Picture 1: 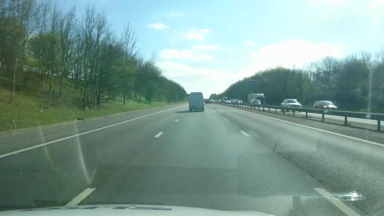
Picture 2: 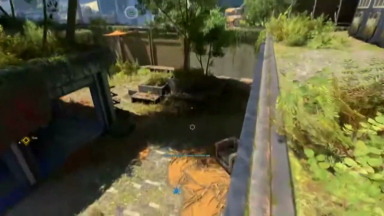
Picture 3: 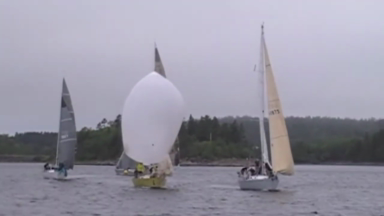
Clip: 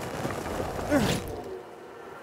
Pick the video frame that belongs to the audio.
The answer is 2